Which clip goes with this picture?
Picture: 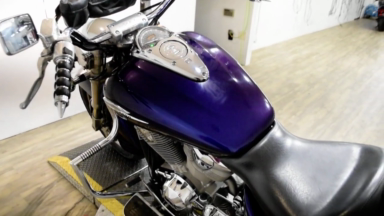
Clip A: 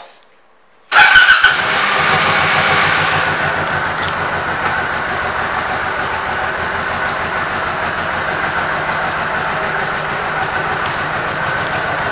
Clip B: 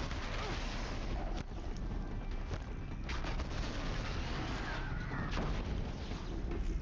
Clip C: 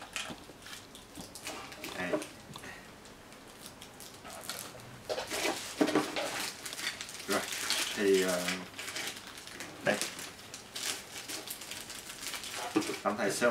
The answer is A